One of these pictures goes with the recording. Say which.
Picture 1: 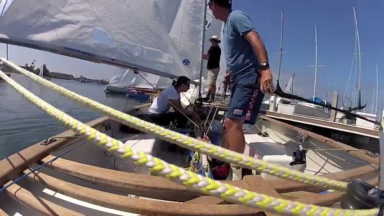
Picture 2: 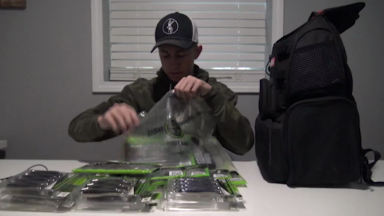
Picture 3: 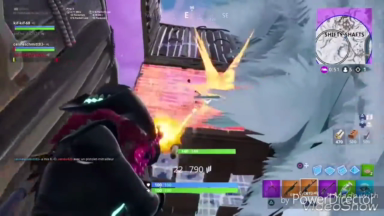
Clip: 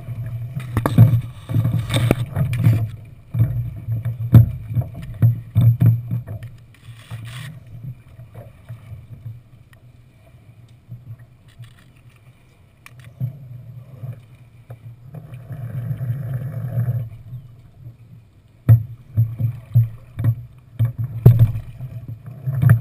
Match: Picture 1